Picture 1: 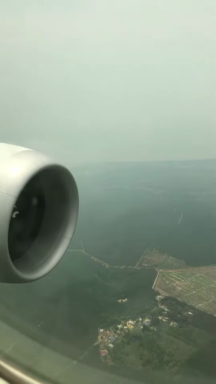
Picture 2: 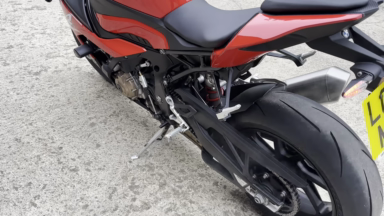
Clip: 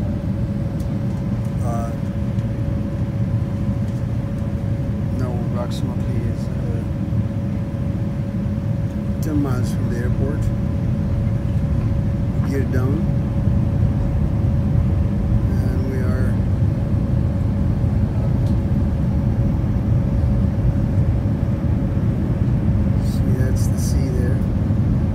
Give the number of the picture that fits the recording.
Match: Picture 1